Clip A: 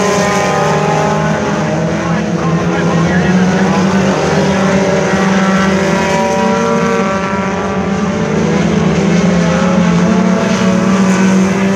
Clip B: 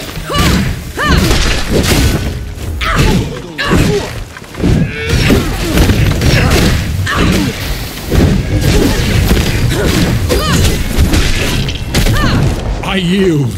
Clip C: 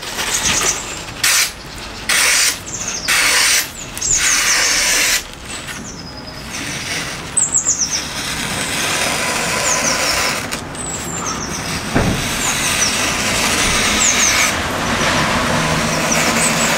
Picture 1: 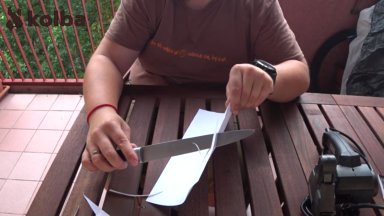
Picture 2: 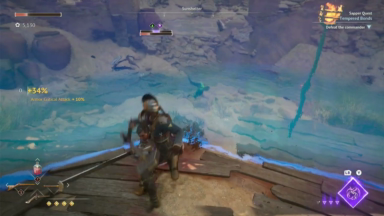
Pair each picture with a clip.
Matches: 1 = C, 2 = B